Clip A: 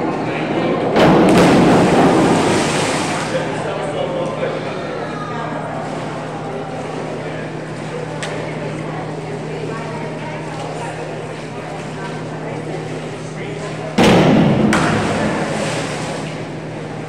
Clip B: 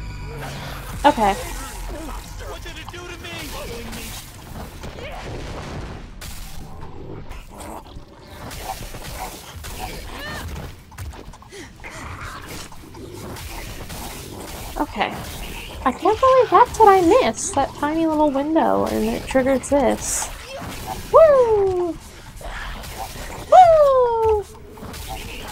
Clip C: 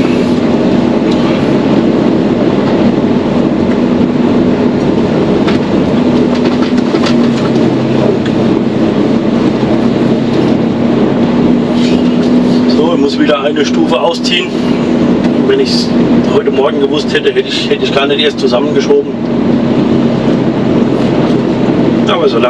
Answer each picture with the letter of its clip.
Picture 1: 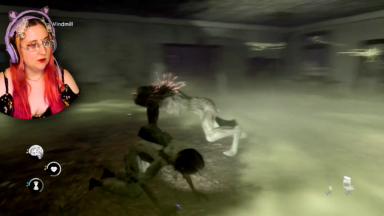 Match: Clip B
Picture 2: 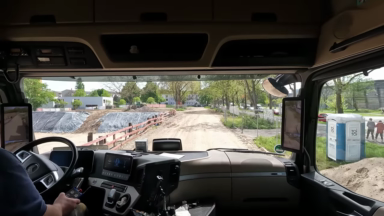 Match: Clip C